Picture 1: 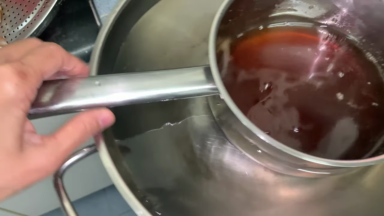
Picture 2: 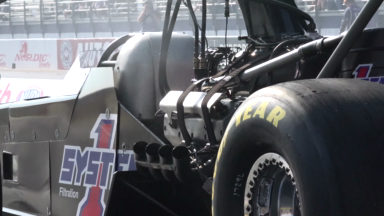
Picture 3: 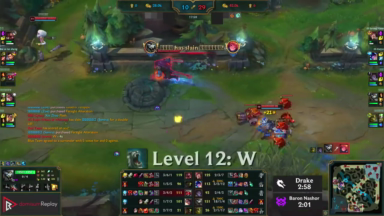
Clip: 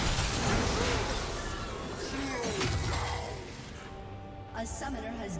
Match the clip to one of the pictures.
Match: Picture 3